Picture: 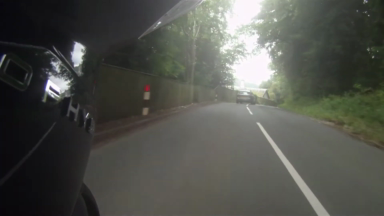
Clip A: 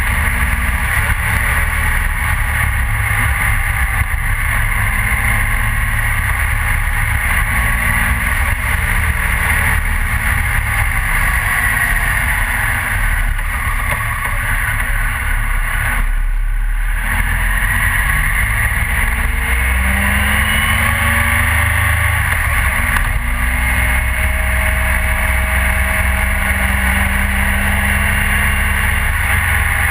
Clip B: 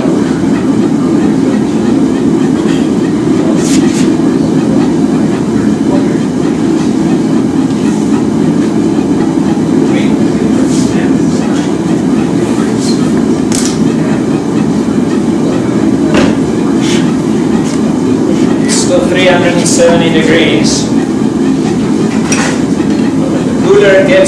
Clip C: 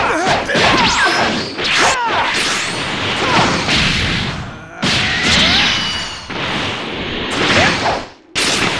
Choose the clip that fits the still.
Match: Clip A